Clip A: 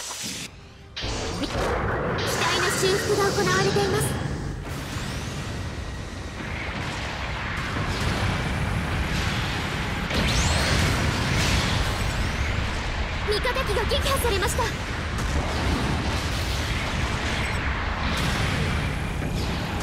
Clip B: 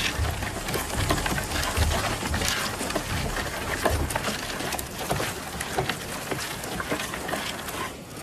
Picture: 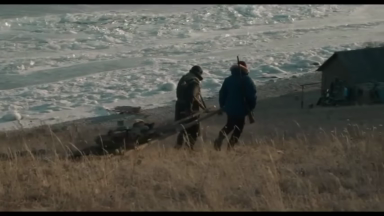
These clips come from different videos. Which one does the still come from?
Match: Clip B